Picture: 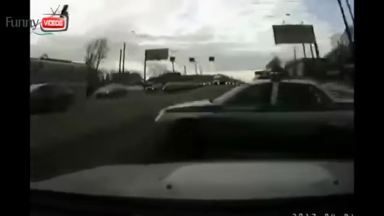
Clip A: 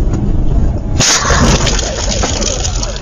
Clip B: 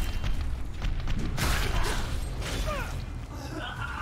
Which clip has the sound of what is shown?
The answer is A